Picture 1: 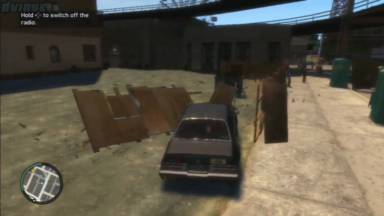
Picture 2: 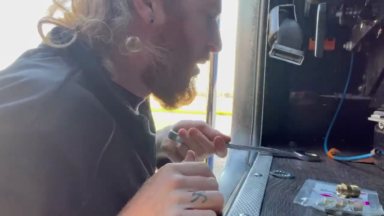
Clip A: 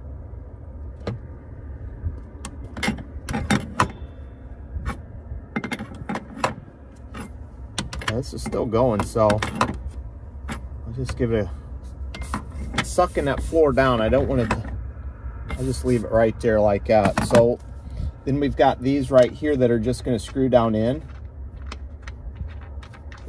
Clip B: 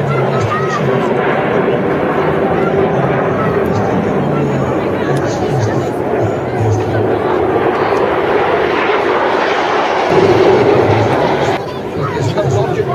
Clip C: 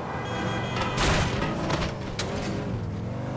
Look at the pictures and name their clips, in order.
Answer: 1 C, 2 A